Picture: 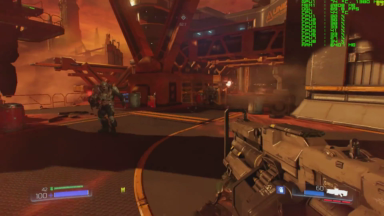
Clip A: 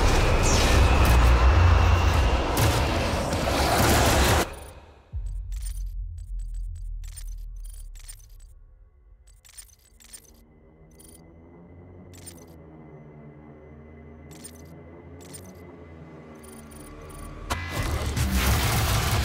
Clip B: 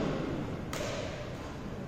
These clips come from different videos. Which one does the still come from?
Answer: A